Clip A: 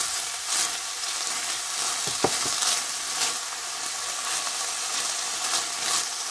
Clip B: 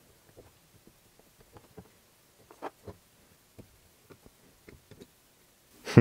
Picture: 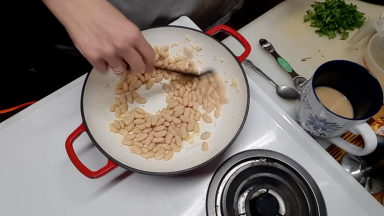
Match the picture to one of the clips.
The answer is A